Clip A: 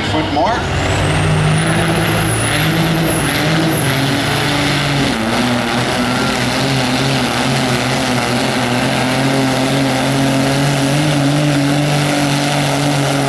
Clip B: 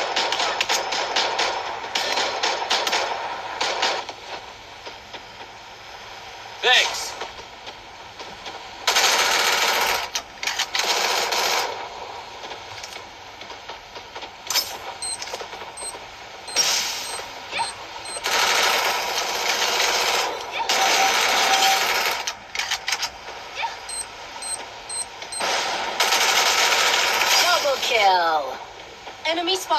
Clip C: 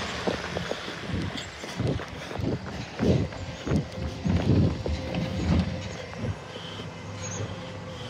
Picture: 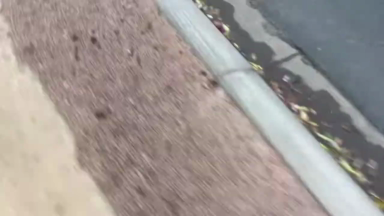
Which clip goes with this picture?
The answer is C